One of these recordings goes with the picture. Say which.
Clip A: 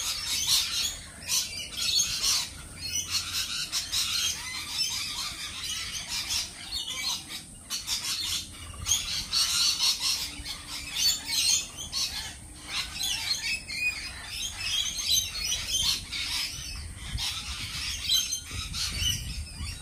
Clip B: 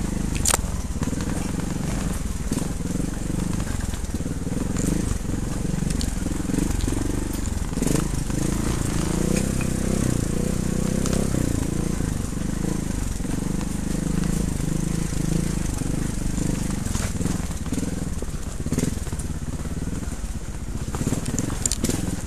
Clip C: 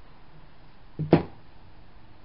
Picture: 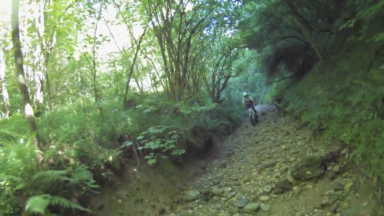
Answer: B